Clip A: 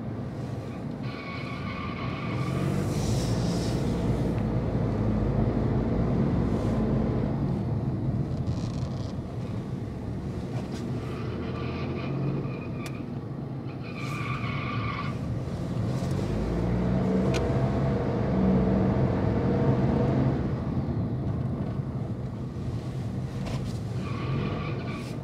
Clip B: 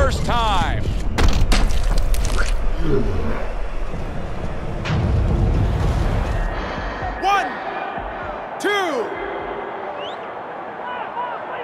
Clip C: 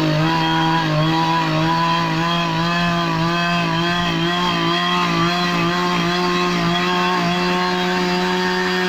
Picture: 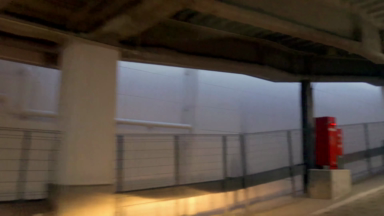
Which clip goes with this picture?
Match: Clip A